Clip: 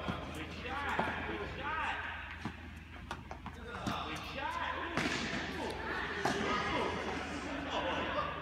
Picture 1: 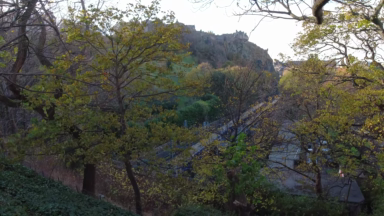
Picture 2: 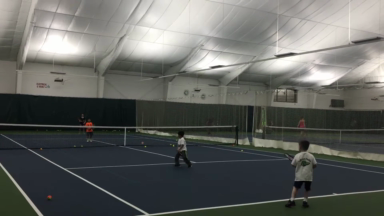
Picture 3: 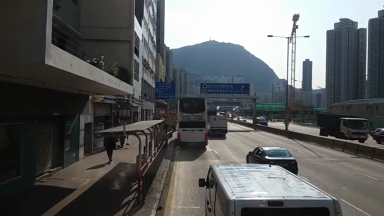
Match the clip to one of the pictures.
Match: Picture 2